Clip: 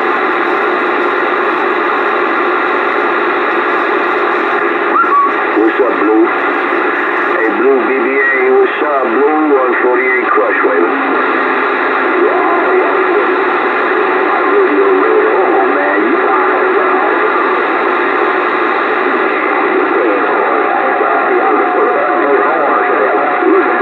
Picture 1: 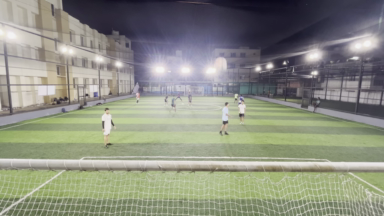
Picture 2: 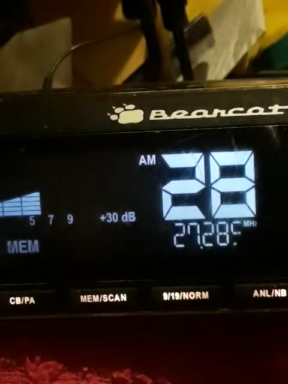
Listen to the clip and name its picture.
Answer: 2